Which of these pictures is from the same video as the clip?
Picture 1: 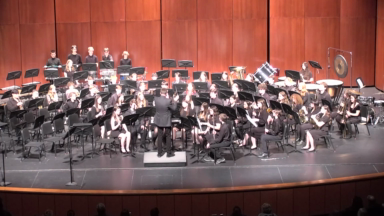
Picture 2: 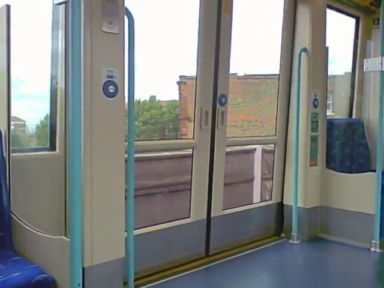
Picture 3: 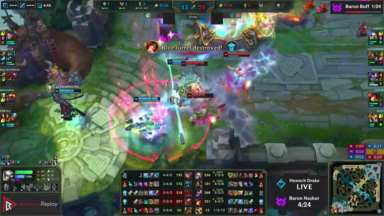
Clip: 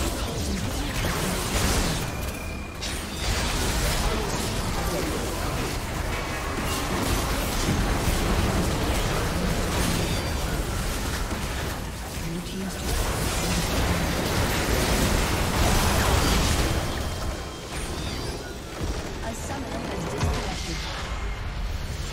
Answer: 3